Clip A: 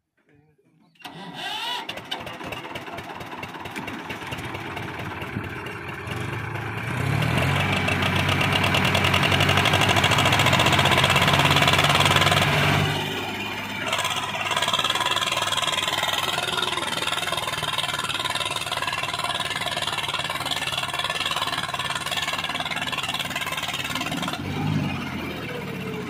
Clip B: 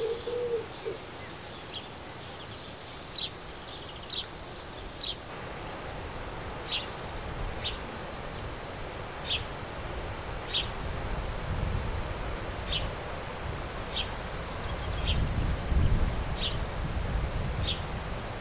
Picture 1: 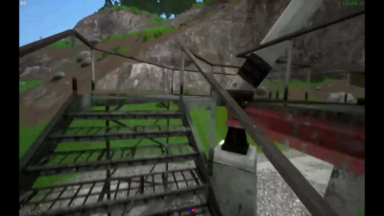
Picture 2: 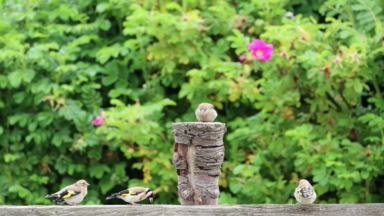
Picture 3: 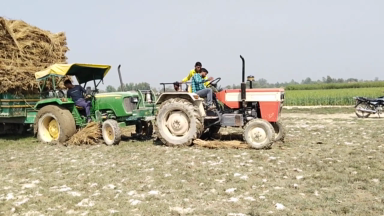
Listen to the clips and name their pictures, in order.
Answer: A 3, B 2